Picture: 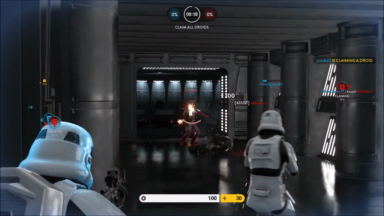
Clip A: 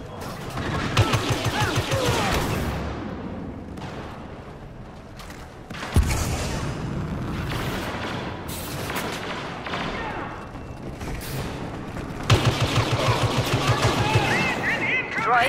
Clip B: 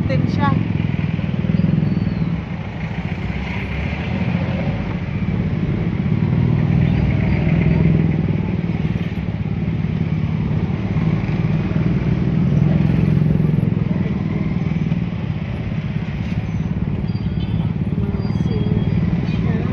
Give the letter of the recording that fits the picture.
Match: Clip A